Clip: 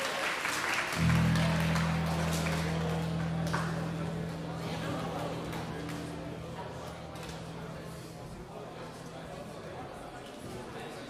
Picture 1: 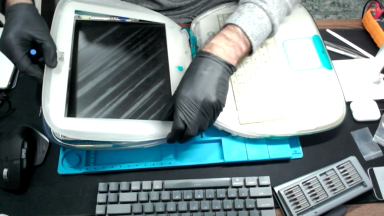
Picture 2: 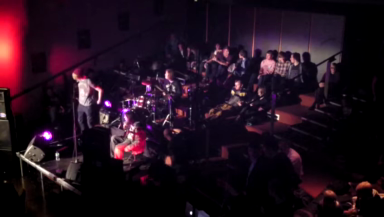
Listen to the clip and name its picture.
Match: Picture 2